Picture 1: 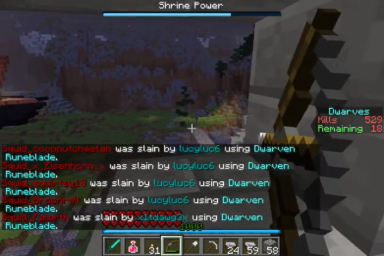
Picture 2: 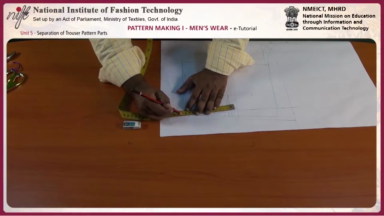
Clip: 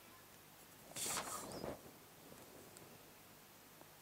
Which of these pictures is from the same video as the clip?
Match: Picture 2